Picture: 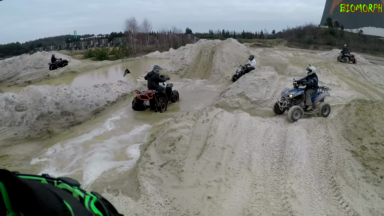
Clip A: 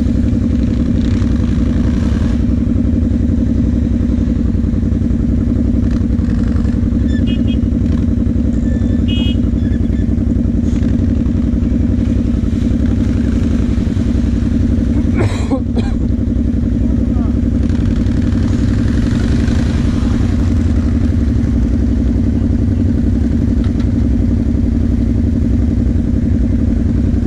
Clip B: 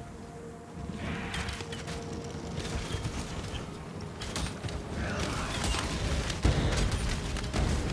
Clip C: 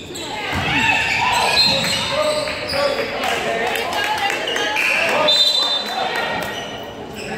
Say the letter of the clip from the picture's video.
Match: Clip A